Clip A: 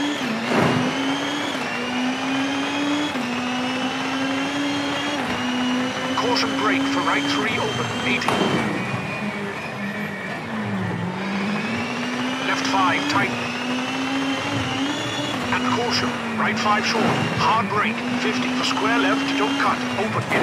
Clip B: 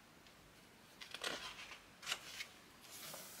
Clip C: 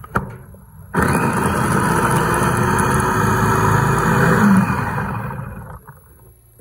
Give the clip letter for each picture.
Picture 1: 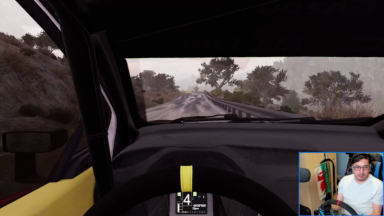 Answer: A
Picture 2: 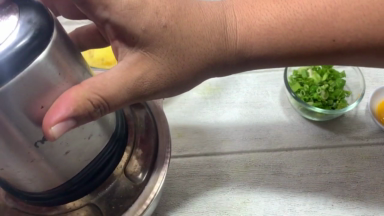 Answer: C